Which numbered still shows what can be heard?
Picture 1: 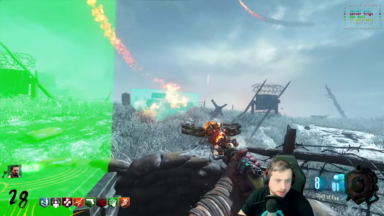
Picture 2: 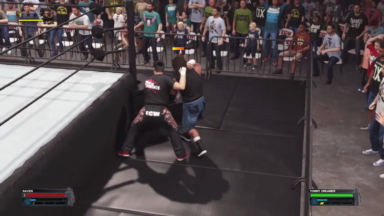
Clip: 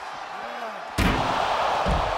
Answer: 2